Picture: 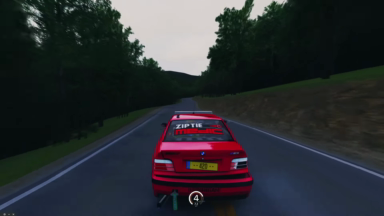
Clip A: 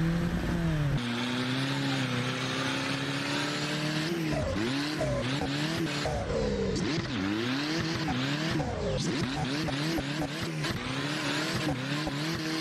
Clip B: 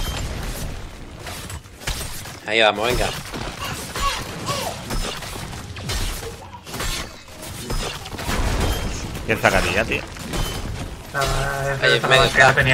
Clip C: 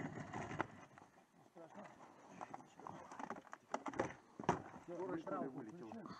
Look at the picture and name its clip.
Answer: A